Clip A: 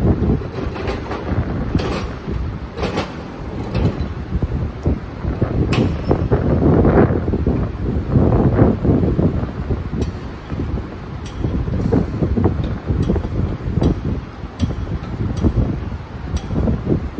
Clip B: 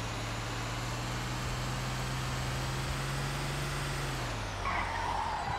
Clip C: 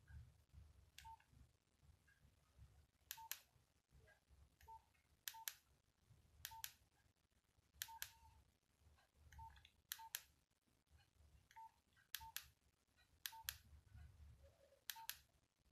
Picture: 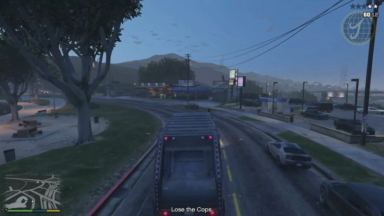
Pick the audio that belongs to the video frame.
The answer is B